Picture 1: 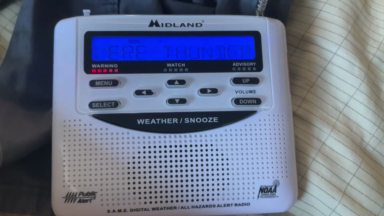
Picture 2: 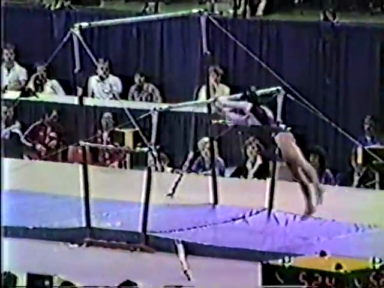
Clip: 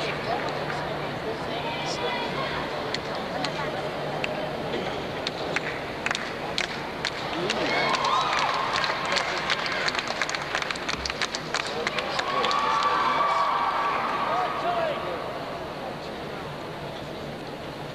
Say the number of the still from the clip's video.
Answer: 2